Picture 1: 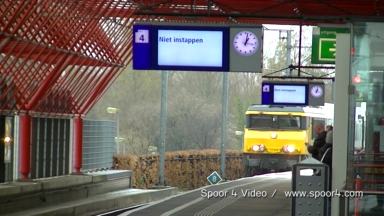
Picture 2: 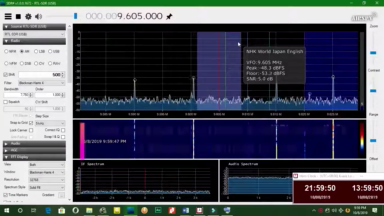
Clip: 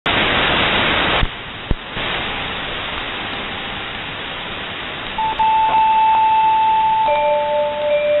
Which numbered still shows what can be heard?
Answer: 2